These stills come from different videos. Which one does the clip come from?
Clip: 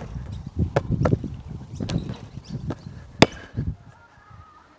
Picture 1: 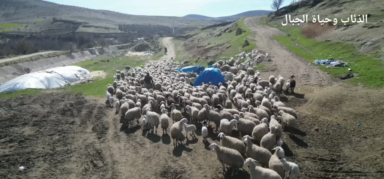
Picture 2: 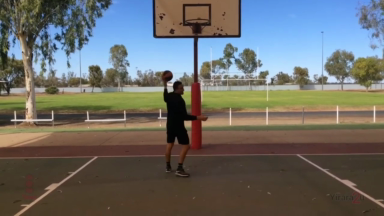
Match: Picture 2